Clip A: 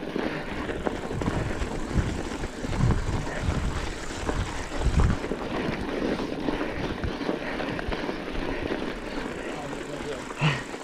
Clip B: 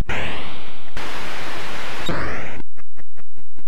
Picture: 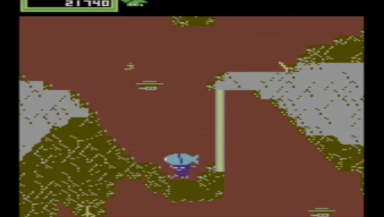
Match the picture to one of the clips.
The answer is B